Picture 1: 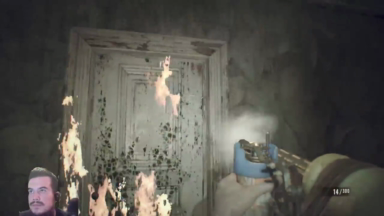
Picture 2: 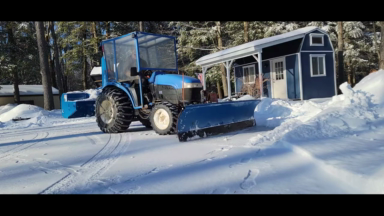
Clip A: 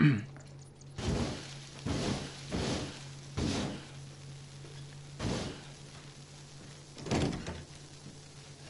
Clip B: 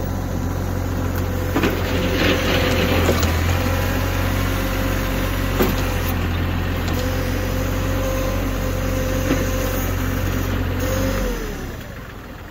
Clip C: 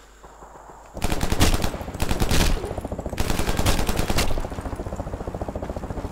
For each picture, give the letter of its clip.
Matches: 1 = A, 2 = B